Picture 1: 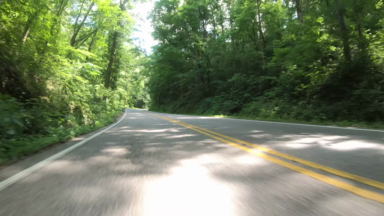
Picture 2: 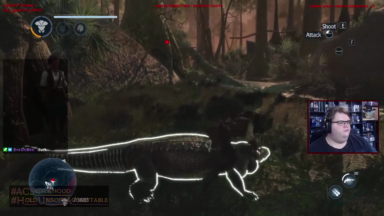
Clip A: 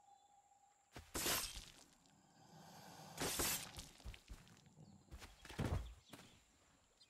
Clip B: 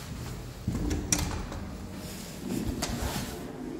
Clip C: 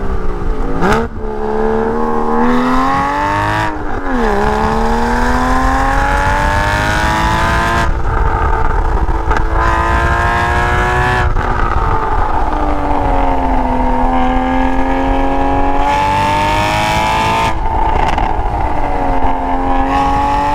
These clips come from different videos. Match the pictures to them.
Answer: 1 C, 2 A